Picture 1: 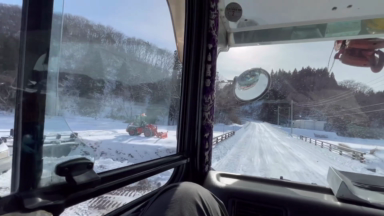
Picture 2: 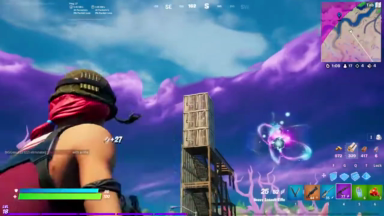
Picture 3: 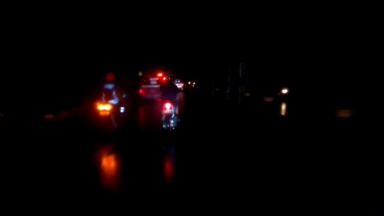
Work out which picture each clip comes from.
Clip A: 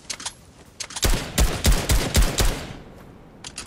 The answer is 2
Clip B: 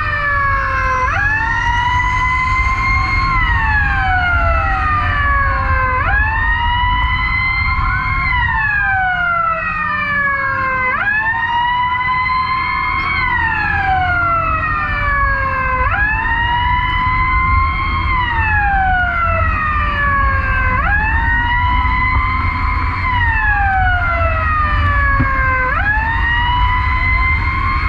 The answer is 3